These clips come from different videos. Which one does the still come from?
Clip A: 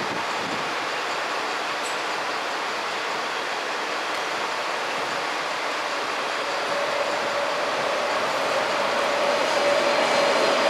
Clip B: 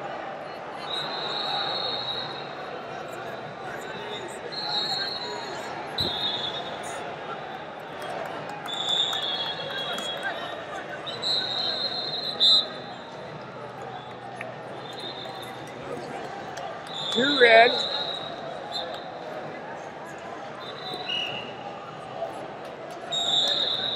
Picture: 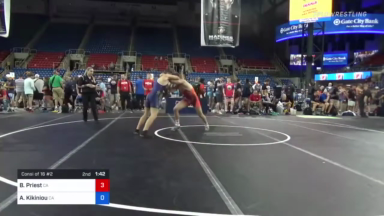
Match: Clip B